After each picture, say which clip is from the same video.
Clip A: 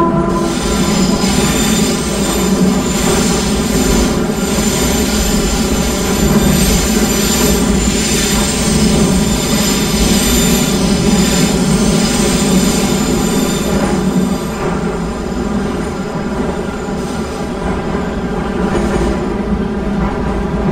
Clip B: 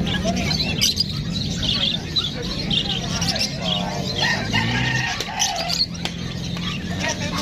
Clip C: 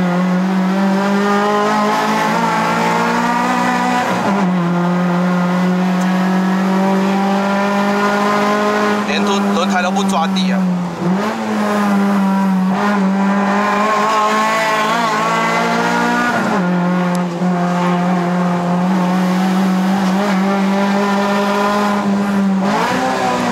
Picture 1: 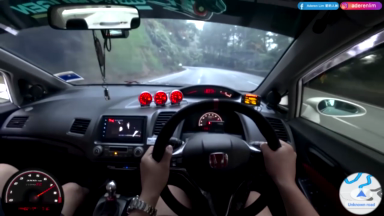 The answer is C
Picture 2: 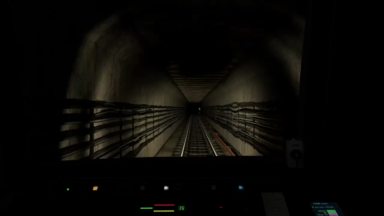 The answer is A